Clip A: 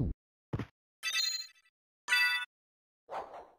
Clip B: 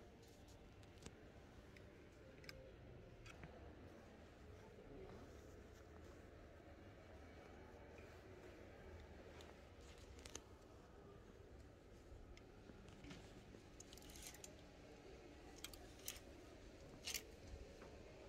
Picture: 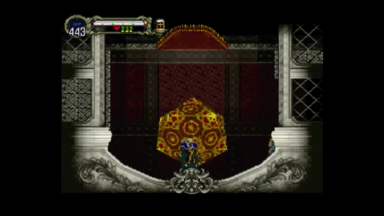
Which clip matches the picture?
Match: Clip A